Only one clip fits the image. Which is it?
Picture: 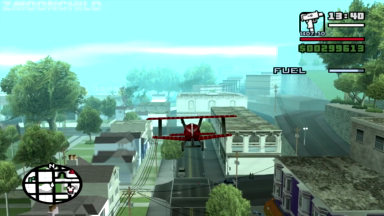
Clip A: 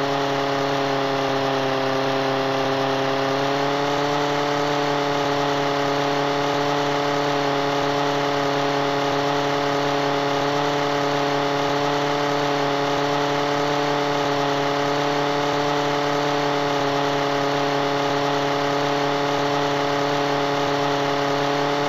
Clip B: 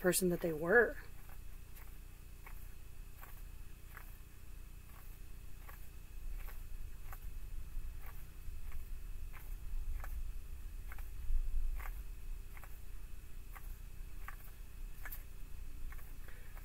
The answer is A